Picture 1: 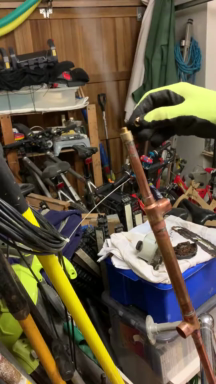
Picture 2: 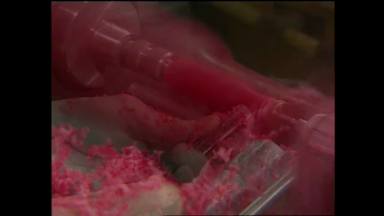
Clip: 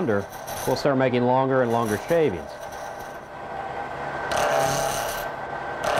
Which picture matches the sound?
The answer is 2